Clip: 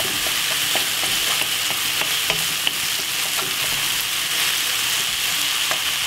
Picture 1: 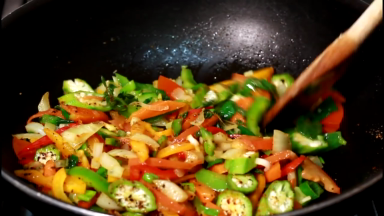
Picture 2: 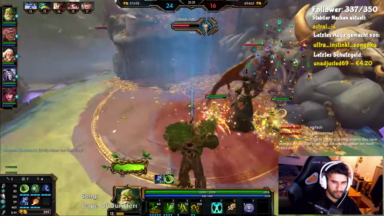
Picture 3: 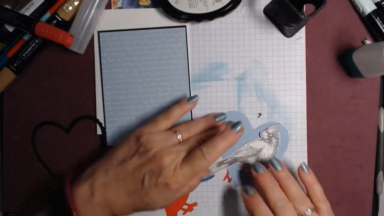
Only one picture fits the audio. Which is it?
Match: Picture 1